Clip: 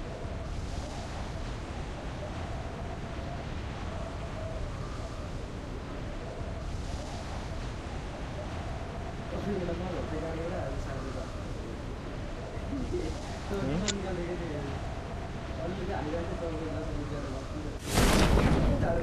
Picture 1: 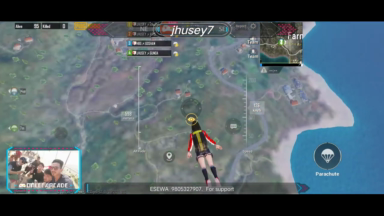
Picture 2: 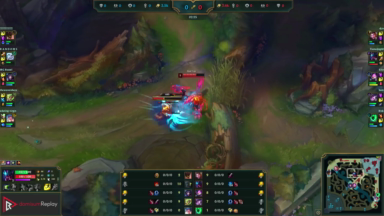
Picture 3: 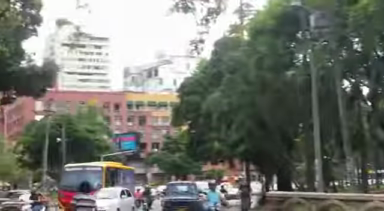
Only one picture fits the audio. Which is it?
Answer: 1